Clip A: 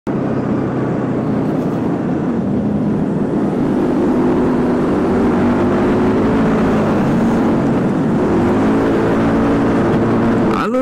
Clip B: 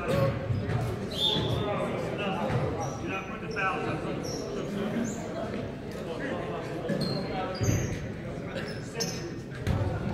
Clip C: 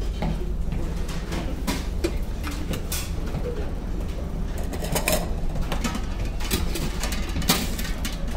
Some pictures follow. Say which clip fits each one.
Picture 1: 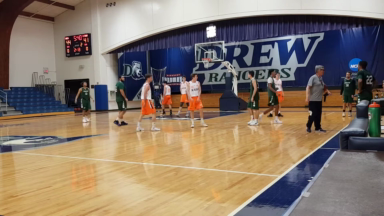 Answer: B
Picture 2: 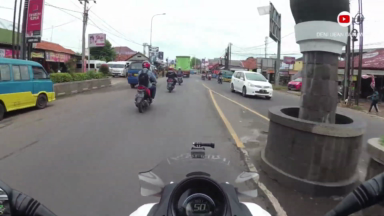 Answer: A